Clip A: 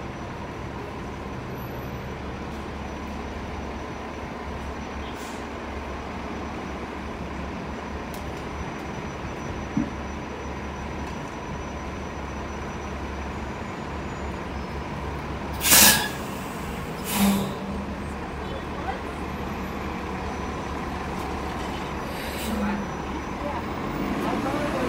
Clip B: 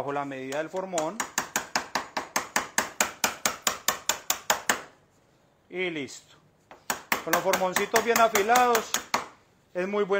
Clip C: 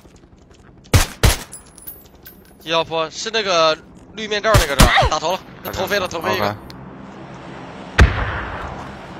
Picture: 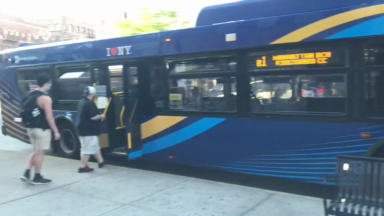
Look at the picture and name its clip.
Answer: A